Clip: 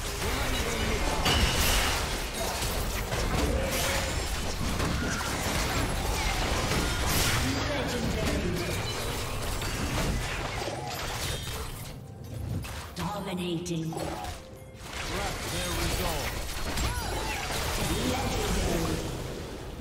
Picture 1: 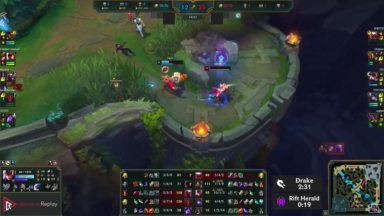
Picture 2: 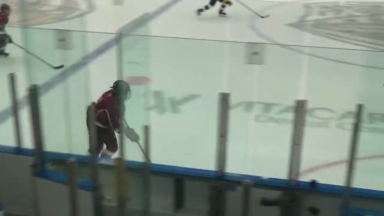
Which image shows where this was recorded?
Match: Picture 1